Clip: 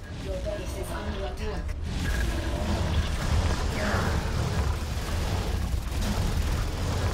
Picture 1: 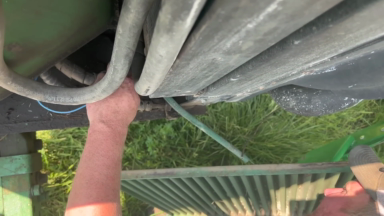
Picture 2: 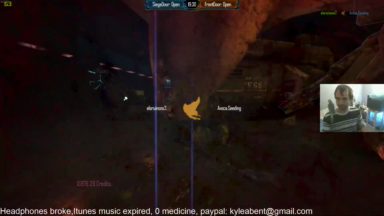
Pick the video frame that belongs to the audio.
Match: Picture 2